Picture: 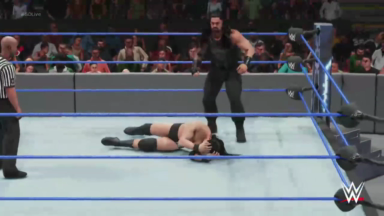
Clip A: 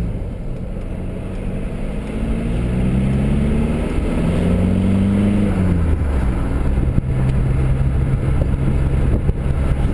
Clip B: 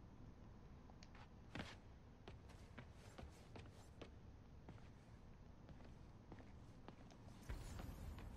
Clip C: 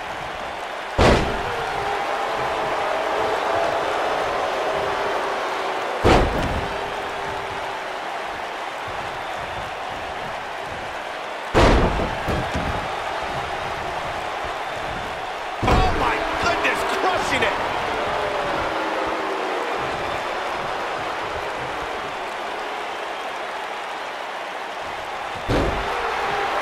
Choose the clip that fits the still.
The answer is C